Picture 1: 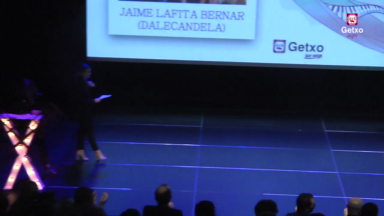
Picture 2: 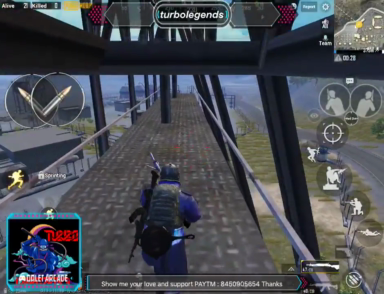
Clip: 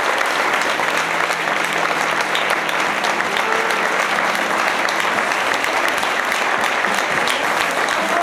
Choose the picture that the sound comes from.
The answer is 1